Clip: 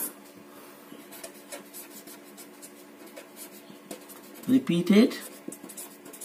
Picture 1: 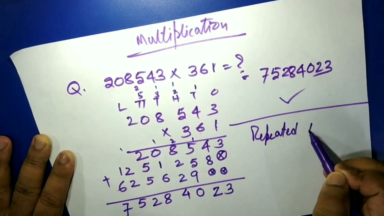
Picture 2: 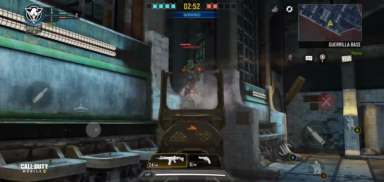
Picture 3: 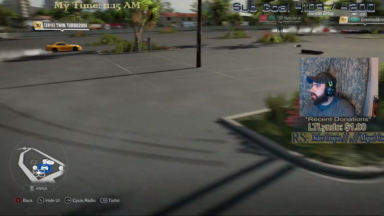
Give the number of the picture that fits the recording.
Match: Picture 1